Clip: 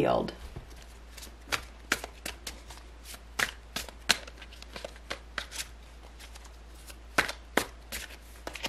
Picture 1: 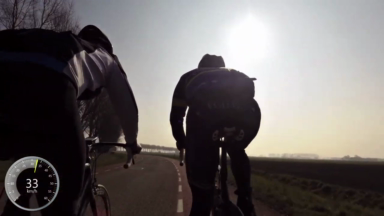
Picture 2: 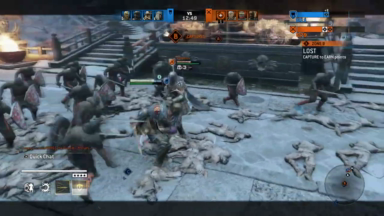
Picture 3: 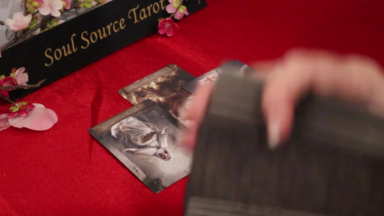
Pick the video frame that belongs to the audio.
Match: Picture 3